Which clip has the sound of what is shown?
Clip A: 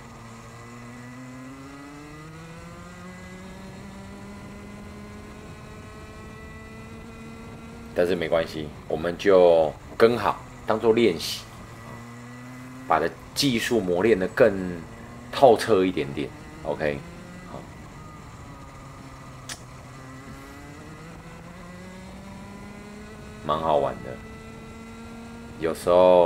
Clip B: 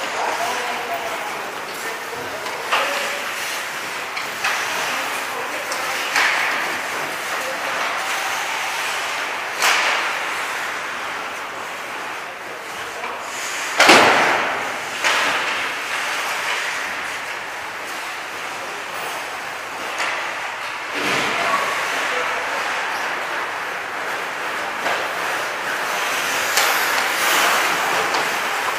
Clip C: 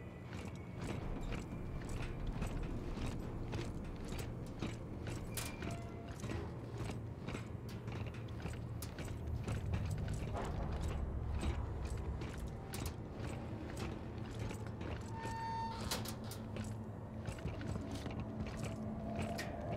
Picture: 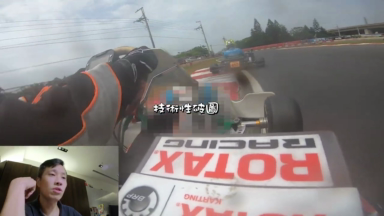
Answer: A